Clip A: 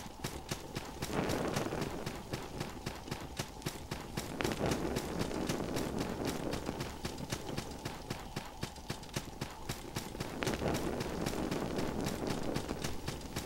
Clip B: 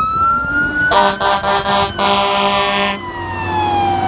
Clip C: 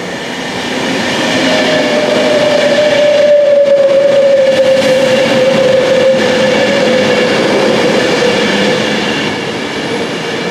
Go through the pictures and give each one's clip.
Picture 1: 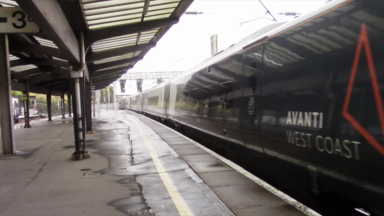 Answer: C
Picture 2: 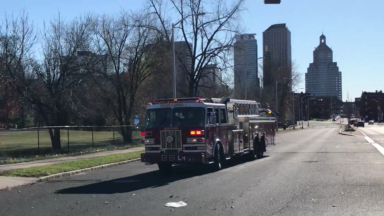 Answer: B